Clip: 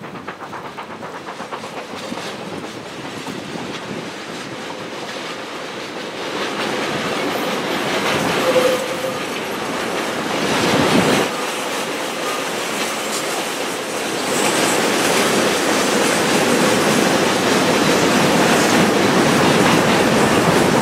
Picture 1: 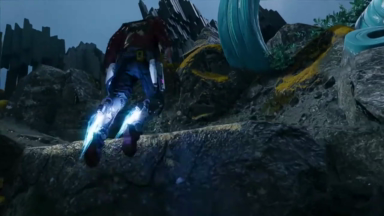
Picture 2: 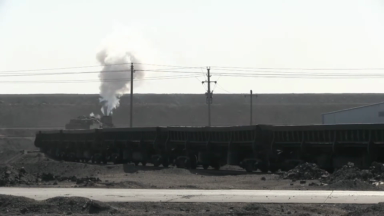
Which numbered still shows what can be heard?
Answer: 2